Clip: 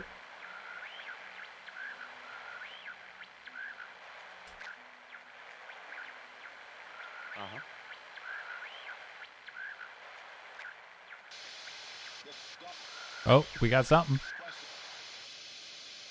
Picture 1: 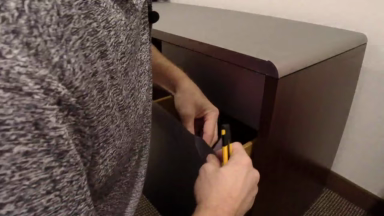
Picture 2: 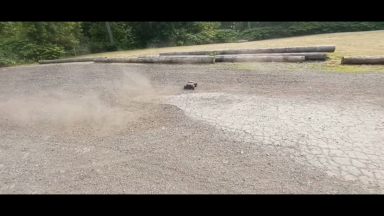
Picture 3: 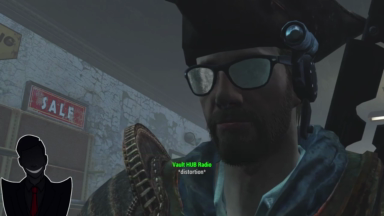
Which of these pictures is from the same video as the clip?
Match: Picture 3